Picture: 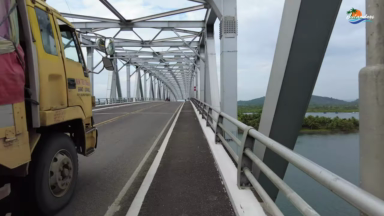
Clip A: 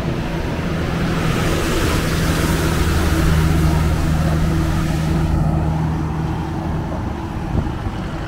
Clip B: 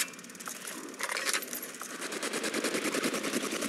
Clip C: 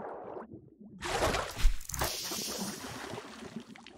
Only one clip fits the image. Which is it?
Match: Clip A